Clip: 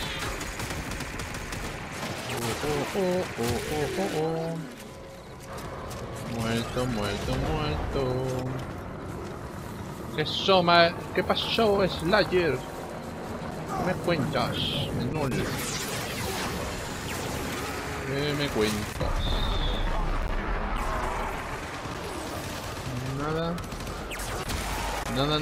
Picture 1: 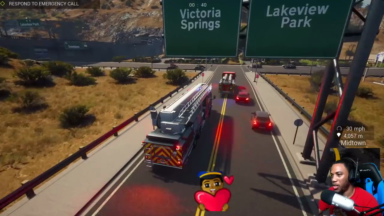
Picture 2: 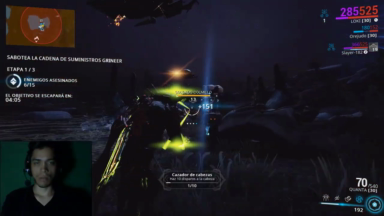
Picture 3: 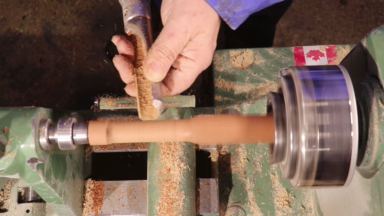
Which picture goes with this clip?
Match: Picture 2